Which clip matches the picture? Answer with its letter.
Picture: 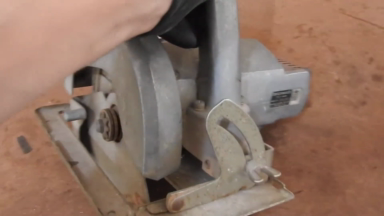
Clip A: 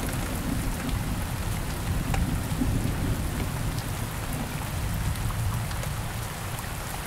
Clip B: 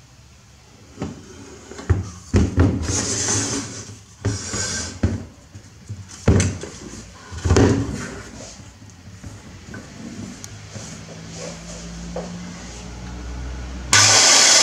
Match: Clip B